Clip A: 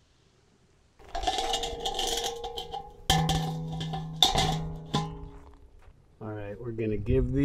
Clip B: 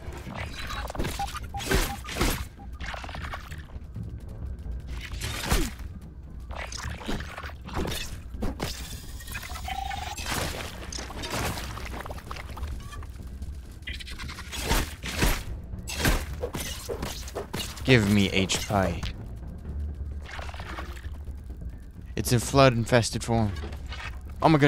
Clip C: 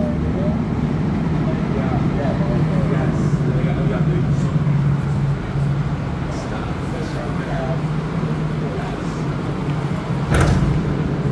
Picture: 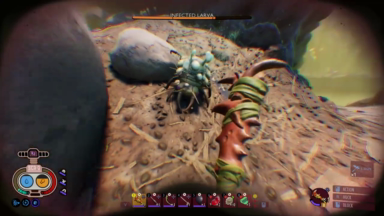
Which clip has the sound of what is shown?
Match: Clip B